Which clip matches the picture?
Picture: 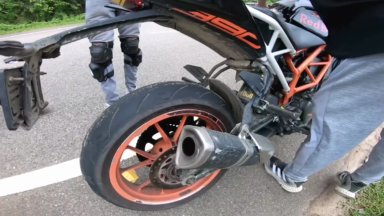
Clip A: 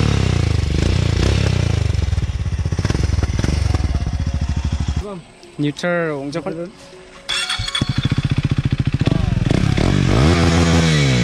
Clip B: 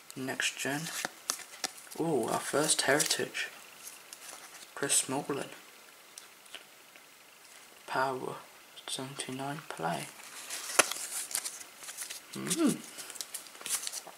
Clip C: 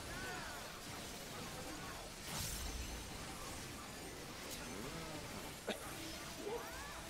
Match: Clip A